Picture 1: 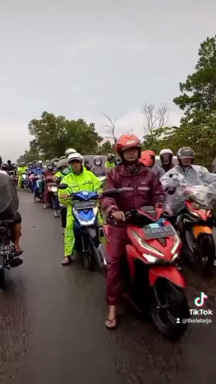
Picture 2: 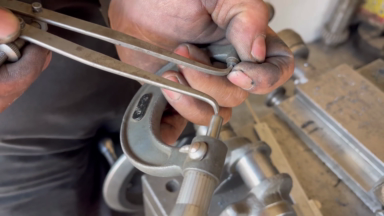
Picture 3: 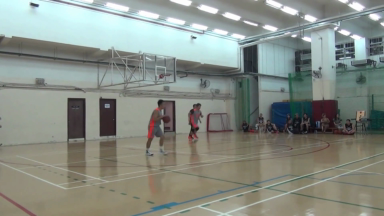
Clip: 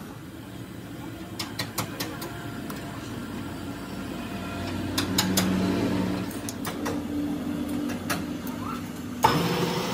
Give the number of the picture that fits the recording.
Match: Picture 2